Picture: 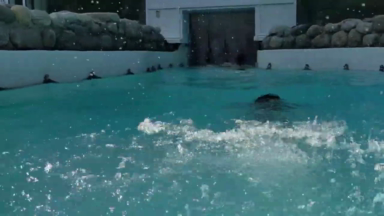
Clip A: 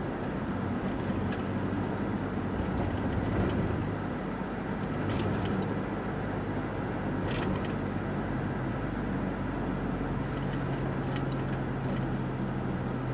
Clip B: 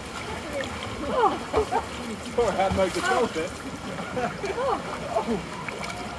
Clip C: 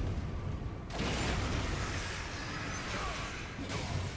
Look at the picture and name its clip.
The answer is B